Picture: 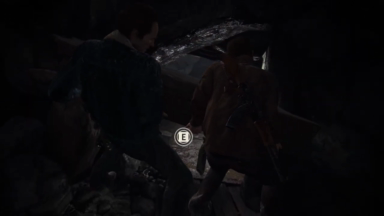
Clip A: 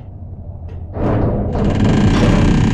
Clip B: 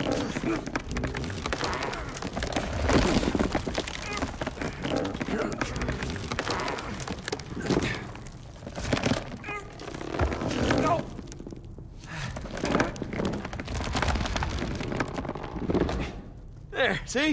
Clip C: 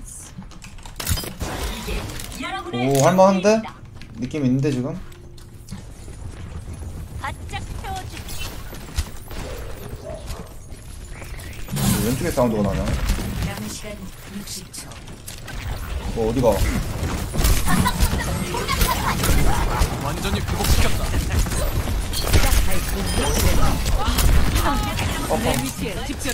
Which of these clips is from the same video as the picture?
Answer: B